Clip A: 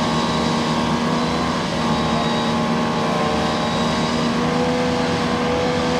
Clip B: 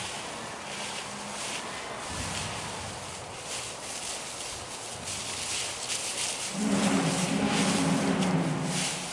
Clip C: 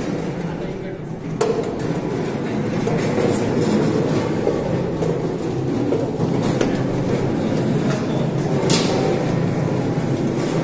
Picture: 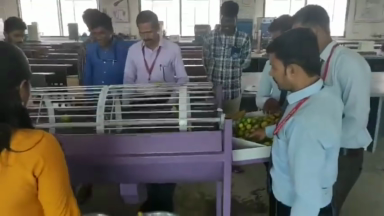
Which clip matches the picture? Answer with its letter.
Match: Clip C